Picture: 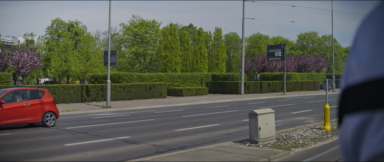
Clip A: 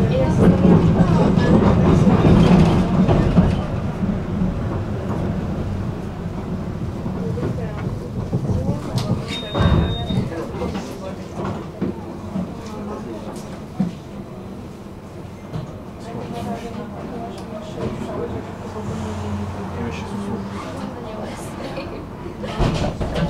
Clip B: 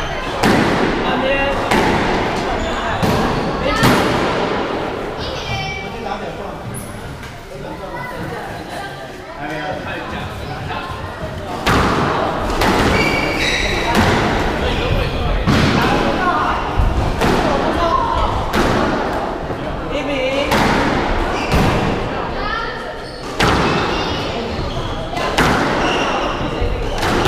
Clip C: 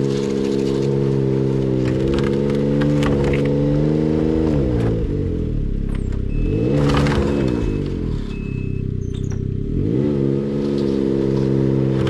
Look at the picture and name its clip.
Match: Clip A